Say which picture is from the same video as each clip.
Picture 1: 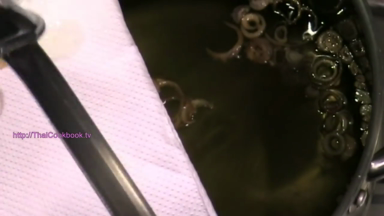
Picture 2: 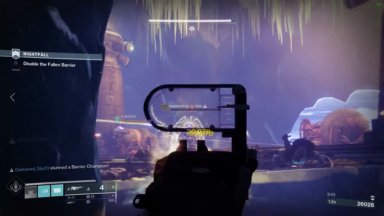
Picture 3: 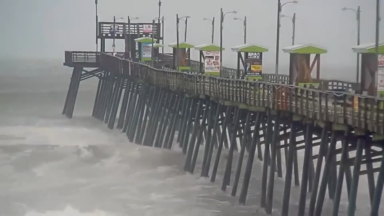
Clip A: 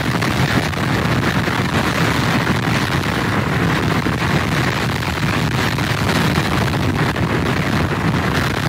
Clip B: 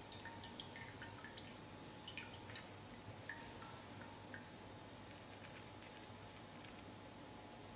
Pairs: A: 3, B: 1